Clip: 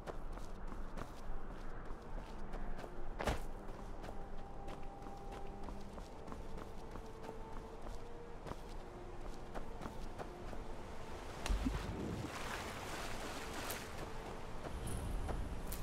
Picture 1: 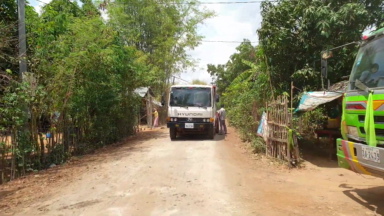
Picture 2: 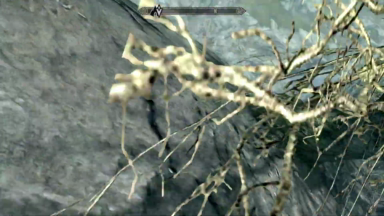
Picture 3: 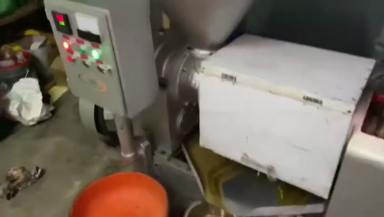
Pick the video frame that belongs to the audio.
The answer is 2